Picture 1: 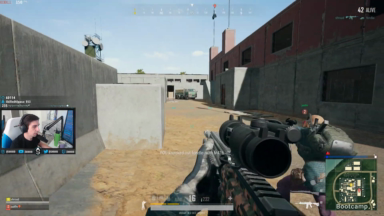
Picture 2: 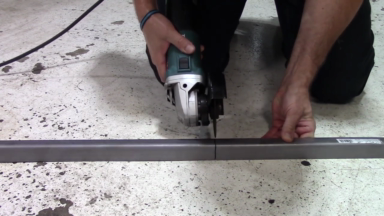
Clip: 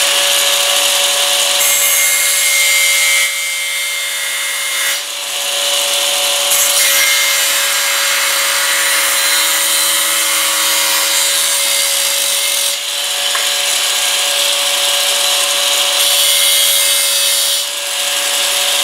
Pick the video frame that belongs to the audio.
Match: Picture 2